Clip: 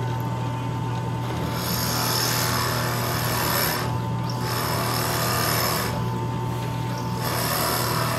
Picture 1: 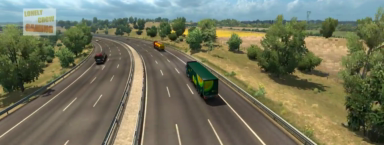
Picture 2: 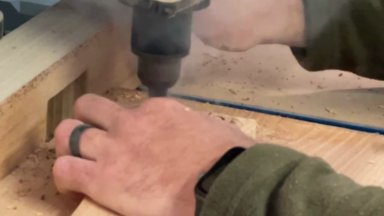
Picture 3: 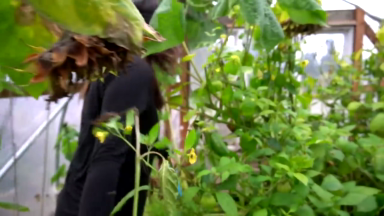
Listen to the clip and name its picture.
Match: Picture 2